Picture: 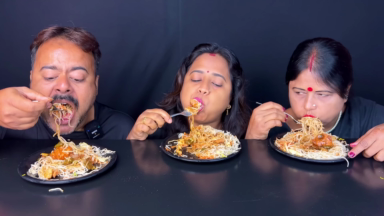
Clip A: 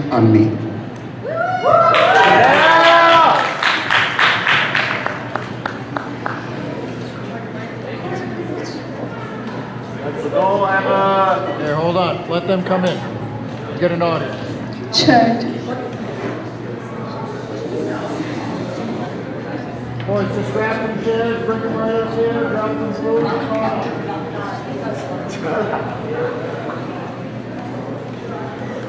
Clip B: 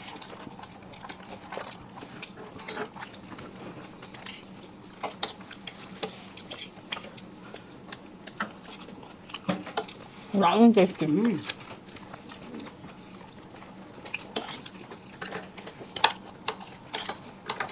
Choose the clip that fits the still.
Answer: B